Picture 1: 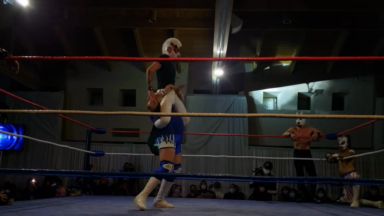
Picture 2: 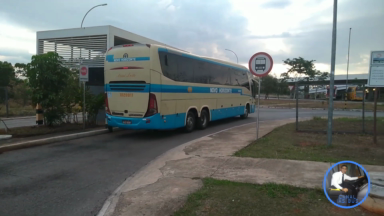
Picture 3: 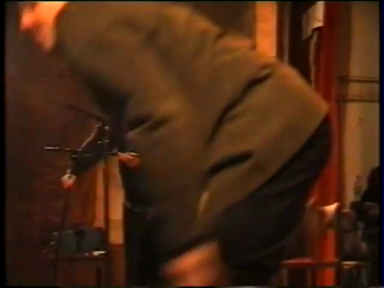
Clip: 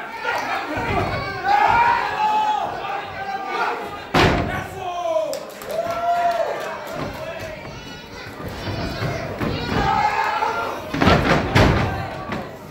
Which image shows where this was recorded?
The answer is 1